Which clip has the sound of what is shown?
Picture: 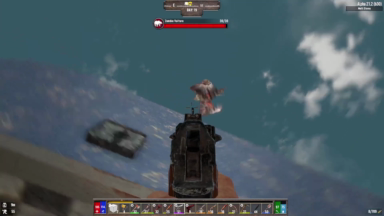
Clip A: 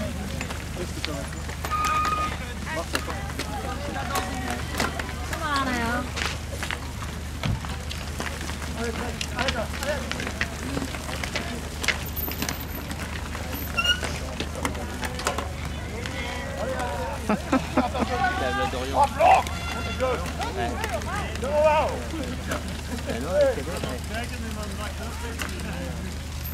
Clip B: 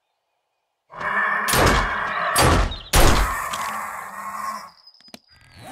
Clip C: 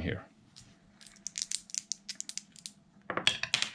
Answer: B